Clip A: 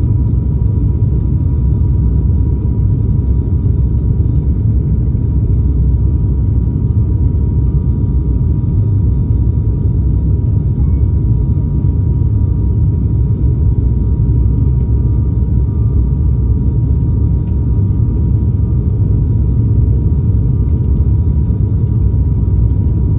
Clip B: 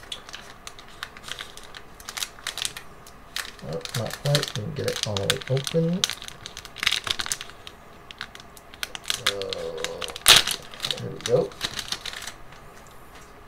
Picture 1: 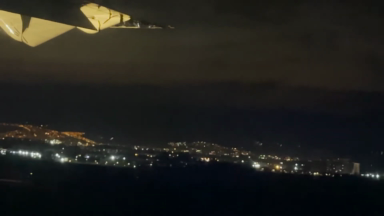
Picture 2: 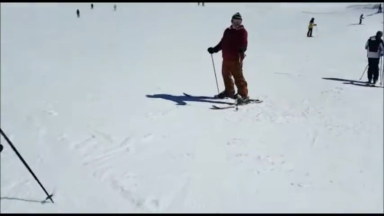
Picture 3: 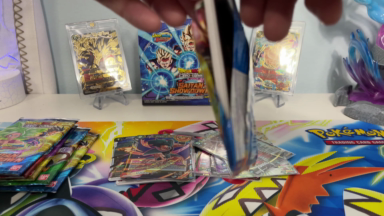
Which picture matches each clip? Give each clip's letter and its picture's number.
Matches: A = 1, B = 3